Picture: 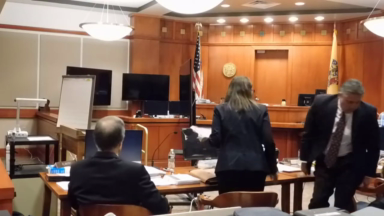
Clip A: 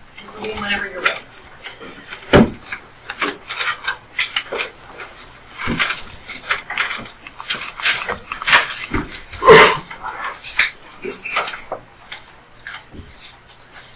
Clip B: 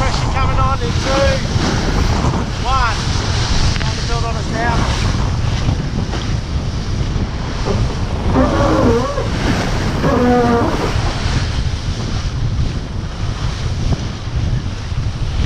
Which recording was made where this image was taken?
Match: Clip A